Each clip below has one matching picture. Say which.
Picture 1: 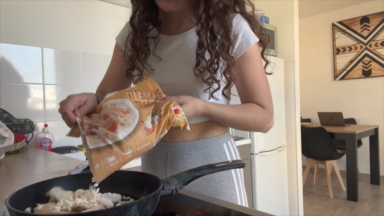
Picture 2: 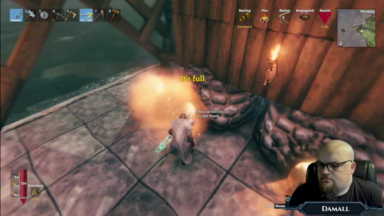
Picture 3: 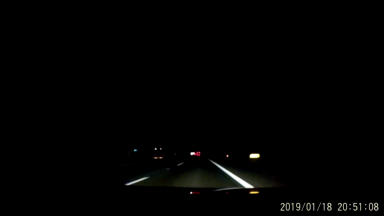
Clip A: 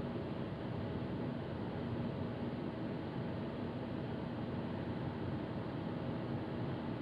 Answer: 3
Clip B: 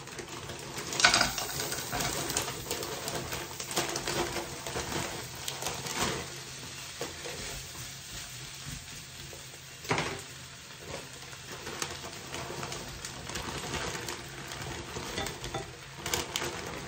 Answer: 1